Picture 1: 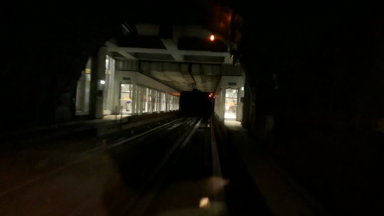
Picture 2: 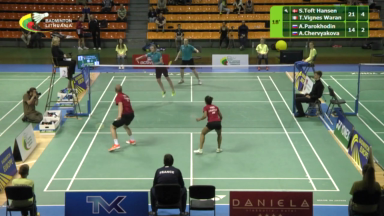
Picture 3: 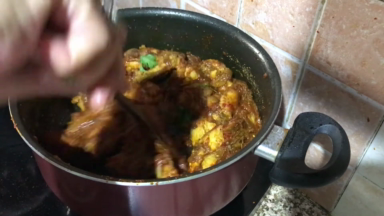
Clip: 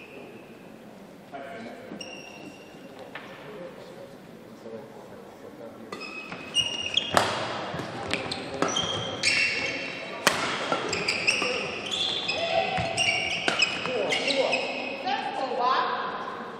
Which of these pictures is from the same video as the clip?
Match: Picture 2